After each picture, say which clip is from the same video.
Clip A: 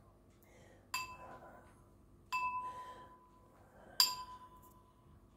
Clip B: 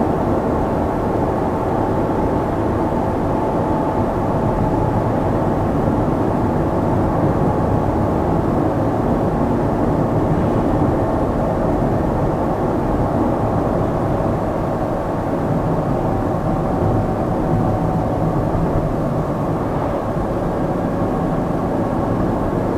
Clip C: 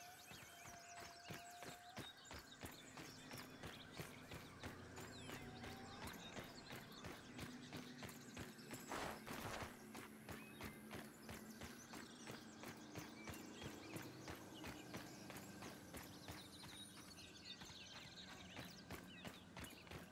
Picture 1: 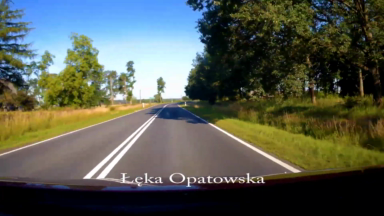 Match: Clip B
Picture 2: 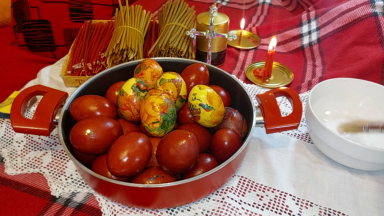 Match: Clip A